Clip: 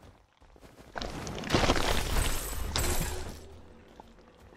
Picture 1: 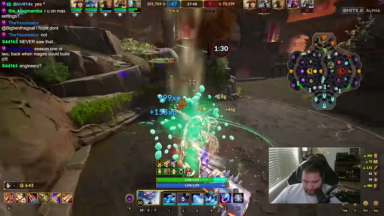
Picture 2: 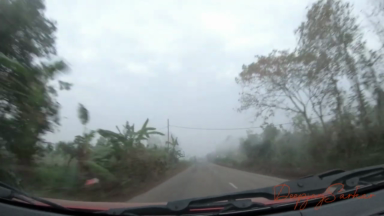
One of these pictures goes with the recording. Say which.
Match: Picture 1